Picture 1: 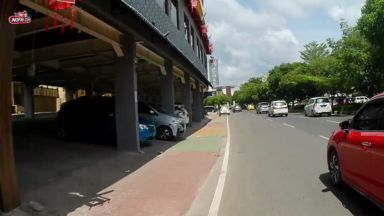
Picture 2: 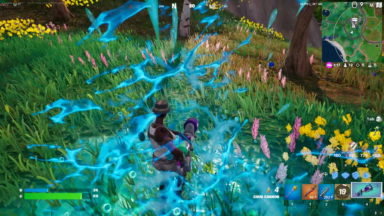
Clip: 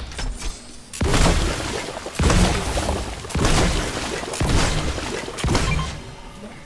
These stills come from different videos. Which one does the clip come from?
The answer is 2